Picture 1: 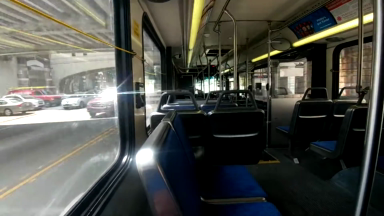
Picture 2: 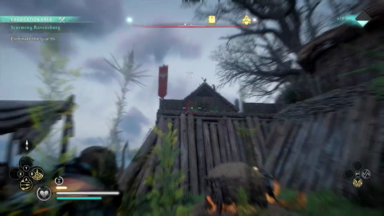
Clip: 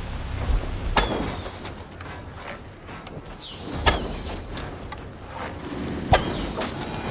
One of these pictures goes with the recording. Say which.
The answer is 2